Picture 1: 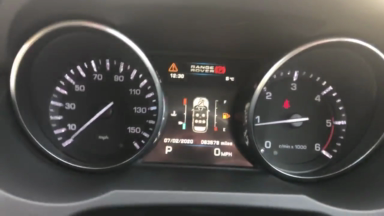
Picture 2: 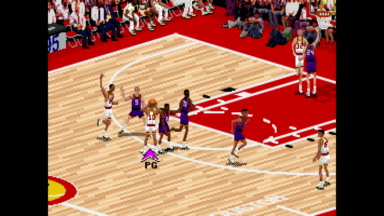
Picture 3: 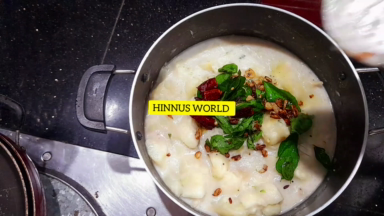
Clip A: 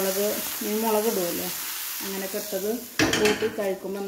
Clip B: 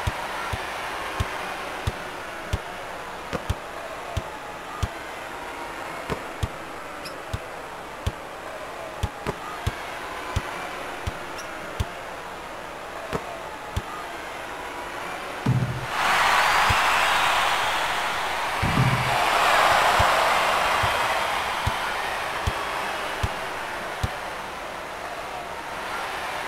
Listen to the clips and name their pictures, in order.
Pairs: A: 3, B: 2